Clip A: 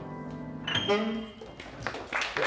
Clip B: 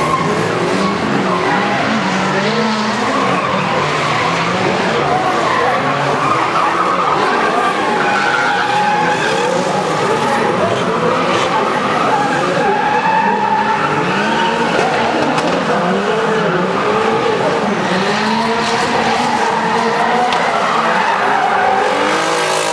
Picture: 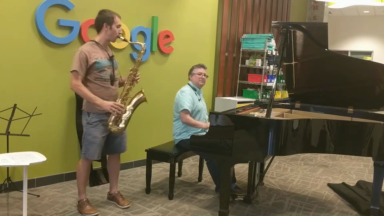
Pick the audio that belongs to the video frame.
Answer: A